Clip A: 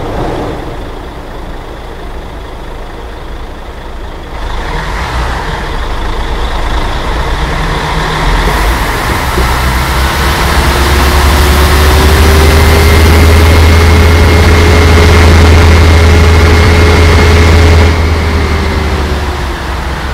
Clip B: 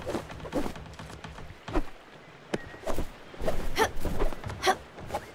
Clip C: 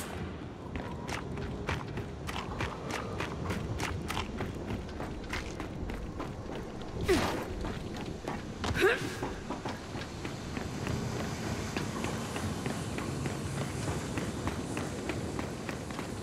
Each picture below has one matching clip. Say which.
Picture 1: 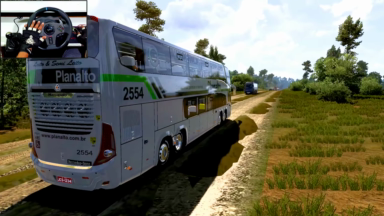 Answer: A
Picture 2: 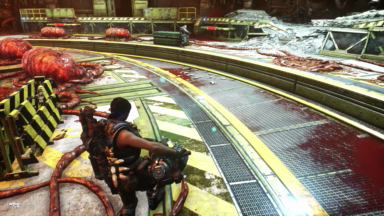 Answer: C